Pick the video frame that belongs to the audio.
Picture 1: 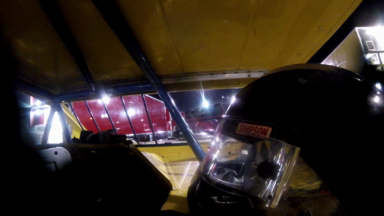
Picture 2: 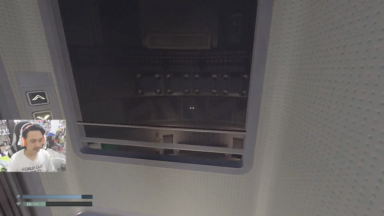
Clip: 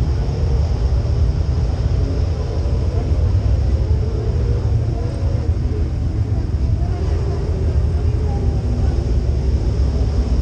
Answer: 1